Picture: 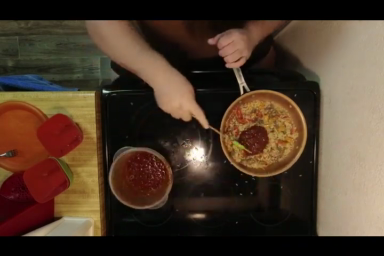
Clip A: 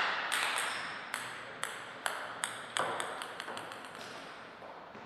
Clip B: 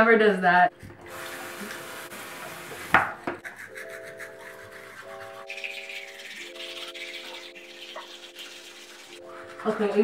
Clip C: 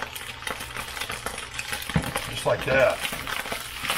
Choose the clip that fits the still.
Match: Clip C